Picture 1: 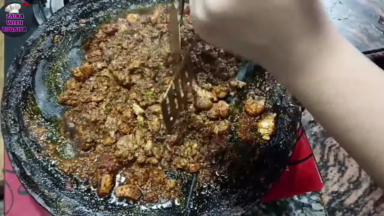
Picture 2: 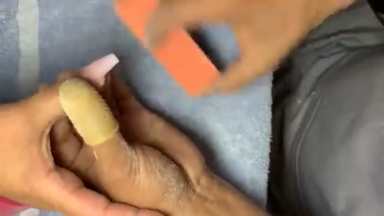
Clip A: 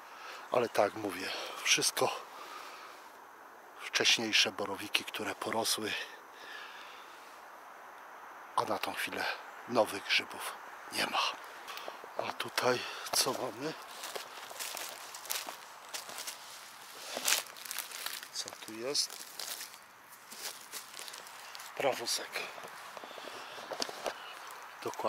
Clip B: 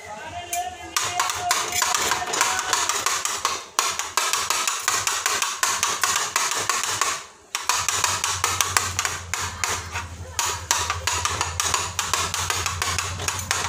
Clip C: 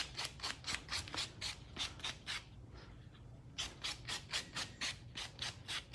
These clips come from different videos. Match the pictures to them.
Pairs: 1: B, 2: C